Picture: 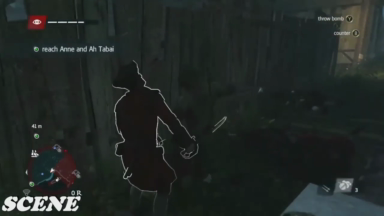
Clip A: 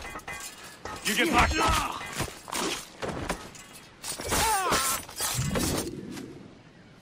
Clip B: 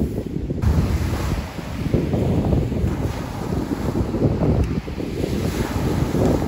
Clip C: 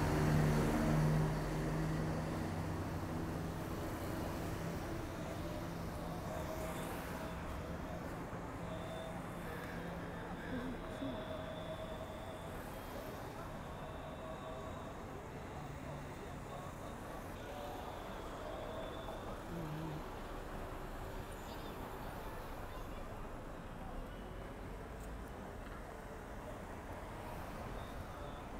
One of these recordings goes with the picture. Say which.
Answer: A